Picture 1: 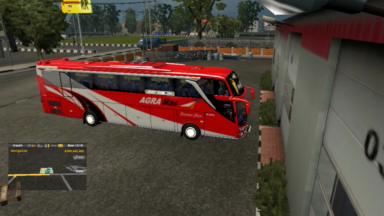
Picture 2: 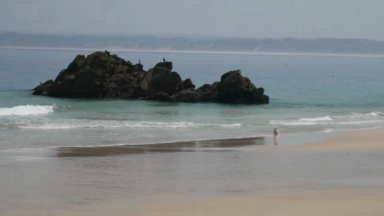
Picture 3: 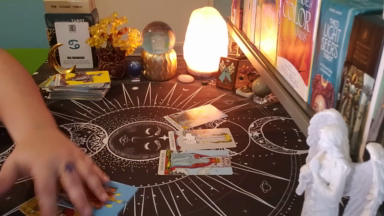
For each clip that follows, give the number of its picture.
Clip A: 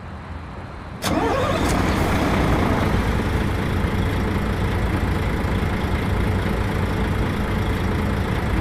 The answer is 1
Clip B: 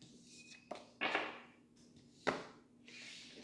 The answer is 3